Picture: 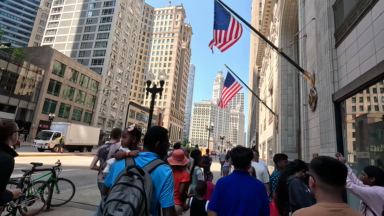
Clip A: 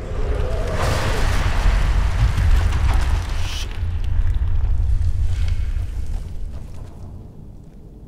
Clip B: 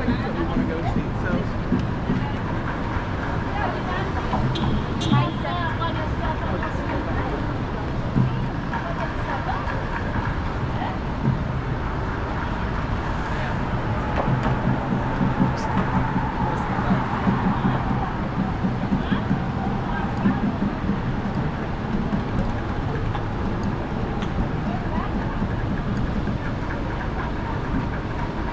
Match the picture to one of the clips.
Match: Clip B